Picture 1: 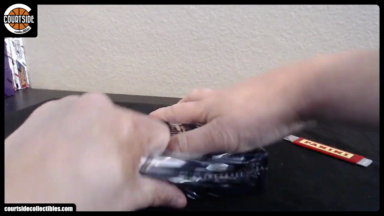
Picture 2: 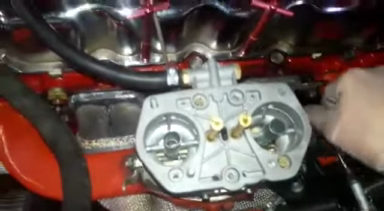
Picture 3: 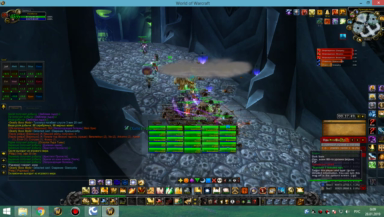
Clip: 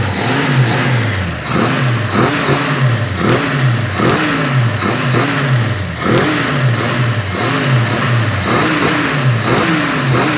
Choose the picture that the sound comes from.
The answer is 2